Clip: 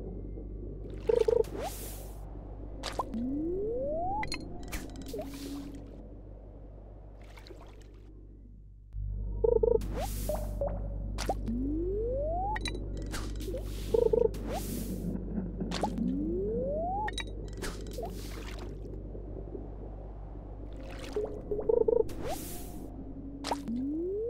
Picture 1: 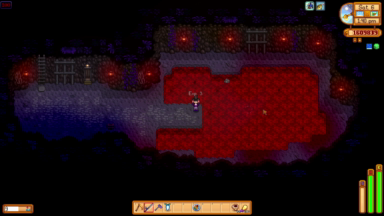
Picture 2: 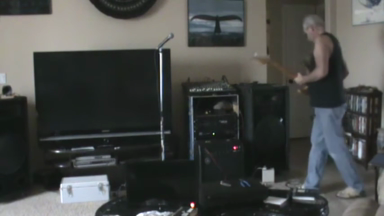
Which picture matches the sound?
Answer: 1